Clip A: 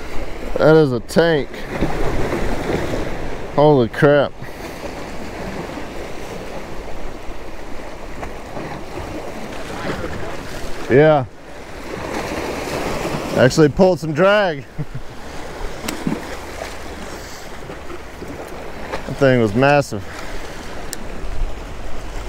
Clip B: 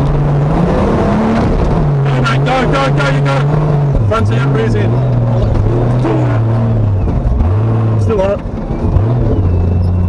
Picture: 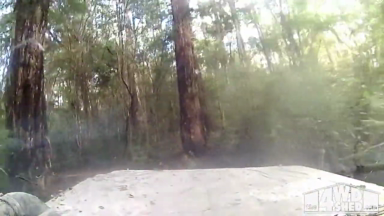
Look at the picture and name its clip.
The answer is B